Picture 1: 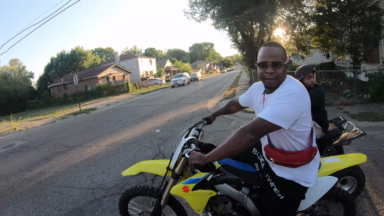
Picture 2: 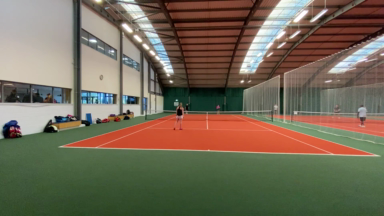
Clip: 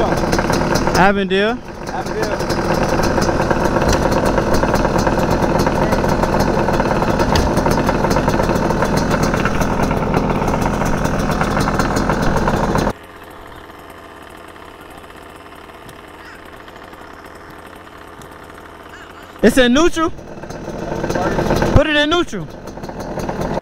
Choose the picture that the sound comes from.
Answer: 1